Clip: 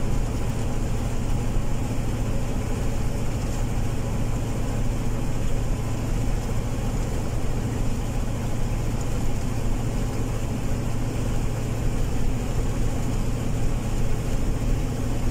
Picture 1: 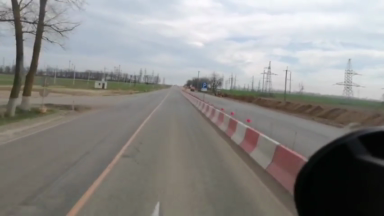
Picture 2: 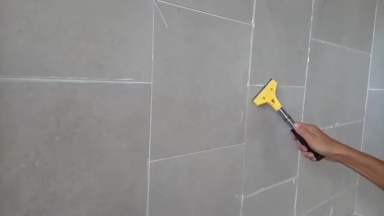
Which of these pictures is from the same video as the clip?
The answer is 1